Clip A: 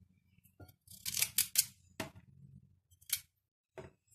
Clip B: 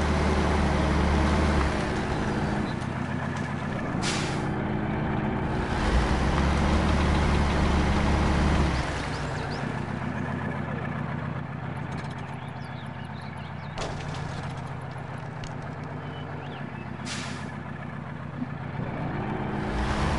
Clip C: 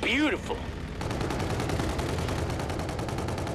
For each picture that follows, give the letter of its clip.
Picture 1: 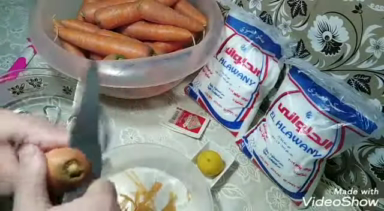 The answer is A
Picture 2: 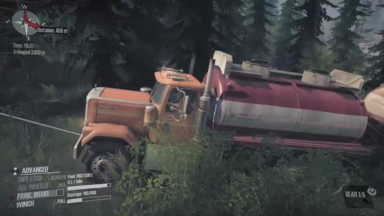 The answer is B